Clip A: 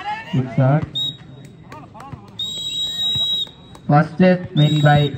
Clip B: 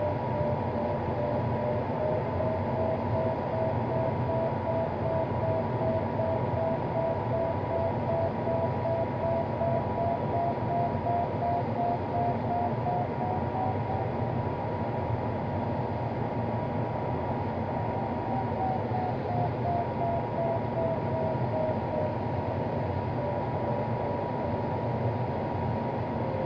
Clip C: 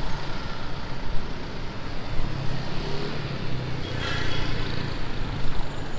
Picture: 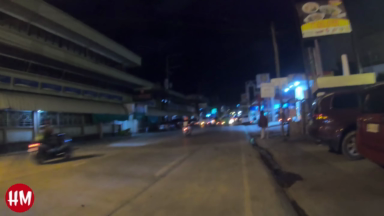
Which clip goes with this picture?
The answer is C